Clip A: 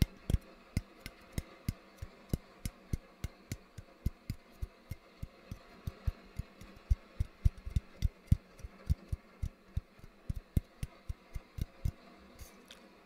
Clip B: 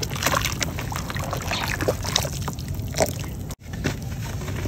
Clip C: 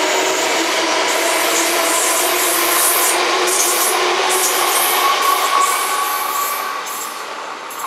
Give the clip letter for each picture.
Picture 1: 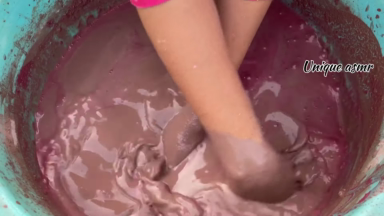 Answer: B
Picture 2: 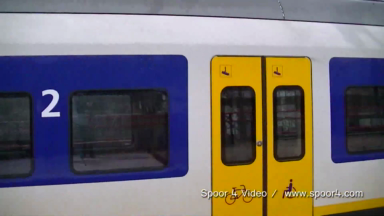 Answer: C